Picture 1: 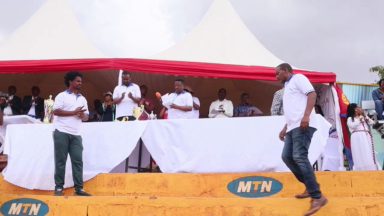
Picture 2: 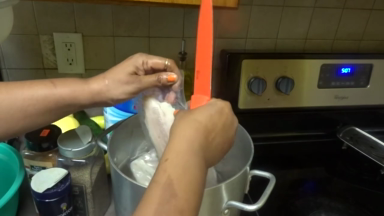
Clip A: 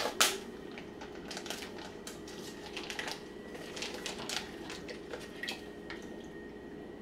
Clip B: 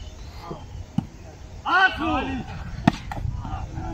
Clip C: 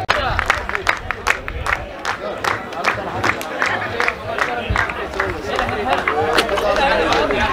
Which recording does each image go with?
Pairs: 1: C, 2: A